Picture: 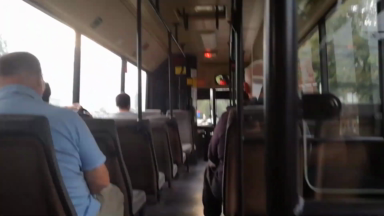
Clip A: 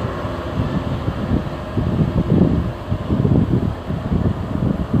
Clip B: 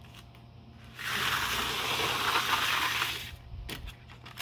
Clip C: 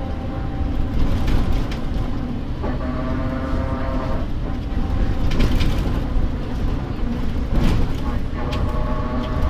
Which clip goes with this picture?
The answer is C